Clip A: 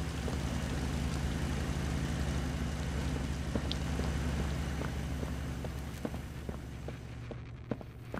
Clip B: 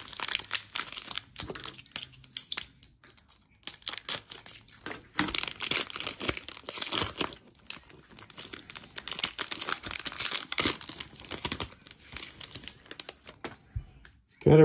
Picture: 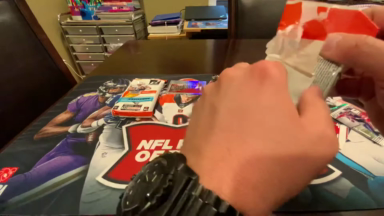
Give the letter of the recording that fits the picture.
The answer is B